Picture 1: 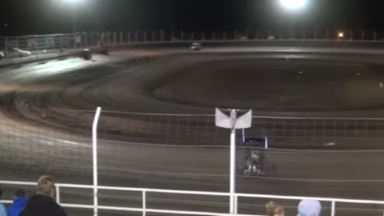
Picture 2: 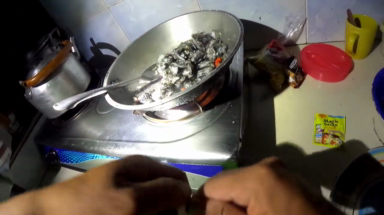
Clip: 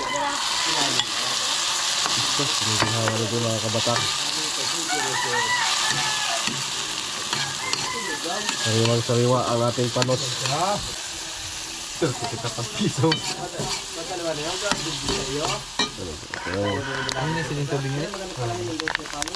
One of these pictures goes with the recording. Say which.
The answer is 2